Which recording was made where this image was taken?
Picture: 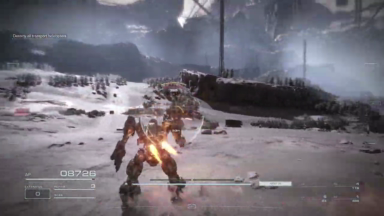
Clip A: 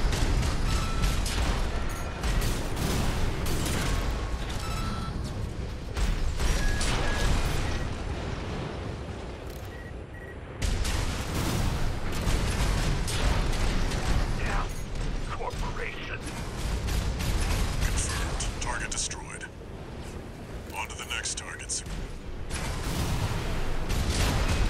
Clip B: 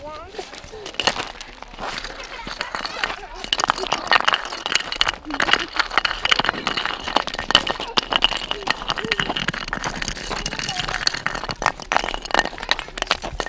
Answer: A